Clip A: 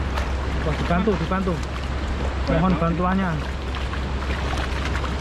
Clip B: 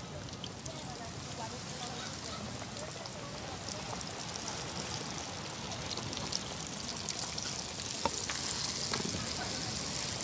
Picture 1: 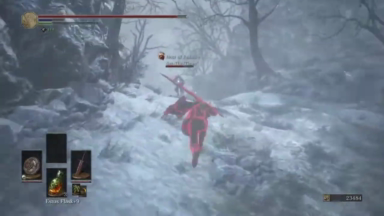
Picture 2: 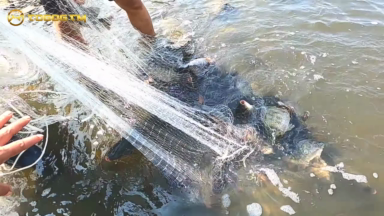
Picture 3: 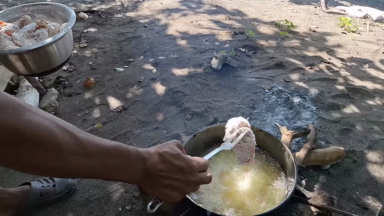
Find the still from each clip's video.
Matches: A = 2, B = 3